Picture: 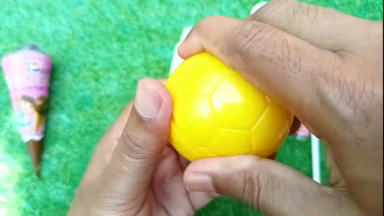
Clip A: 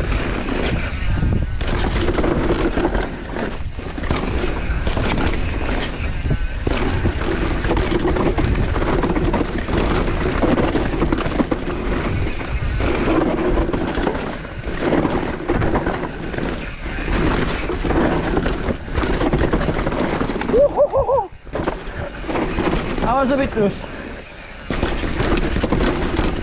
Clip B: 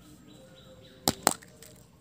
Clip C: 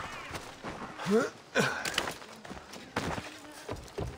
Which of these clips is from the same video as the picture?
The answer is B